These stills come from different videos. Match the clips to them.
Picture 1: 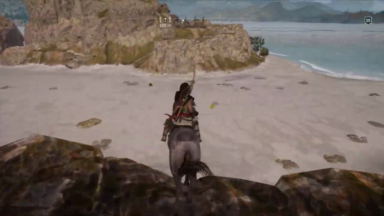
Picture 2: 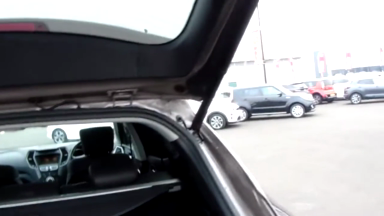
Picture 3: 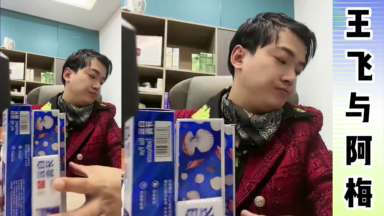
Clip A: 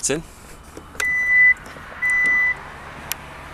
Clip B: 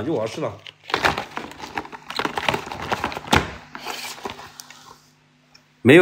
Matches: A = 2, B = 3